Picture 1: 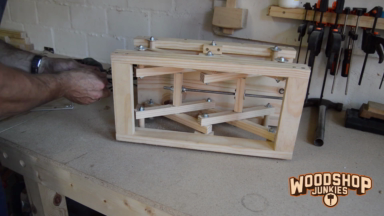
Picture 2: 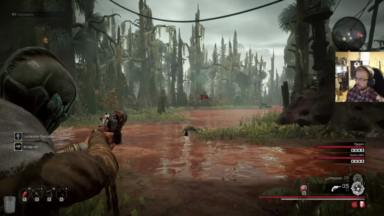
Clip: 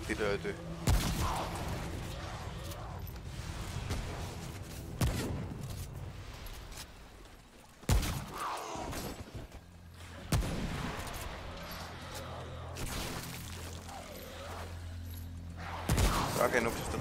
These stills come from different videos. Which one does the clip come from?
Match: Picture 2